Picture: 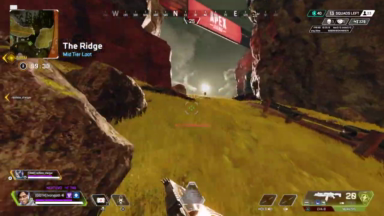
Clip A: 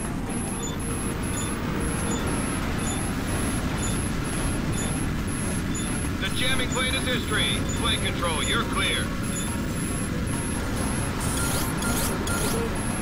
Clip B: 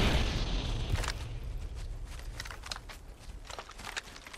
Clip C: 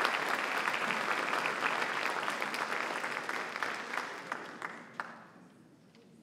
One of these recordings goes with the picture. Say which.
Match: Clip B